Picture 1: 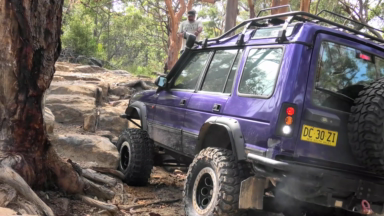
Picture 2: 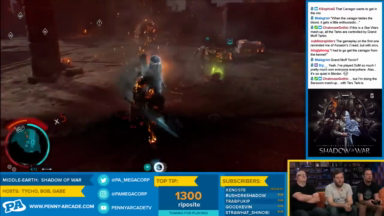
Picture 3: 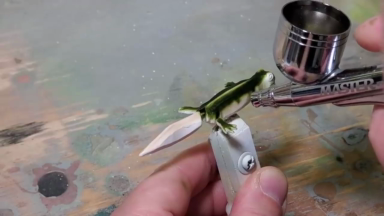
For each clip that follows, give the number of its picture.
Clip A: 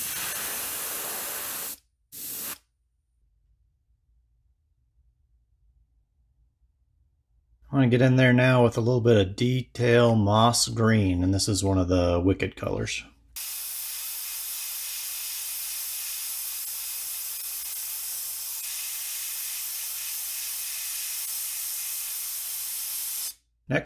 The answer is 3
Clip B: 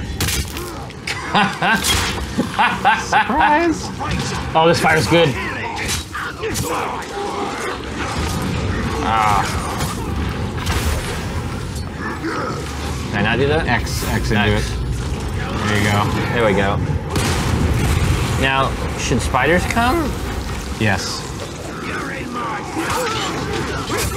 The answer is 2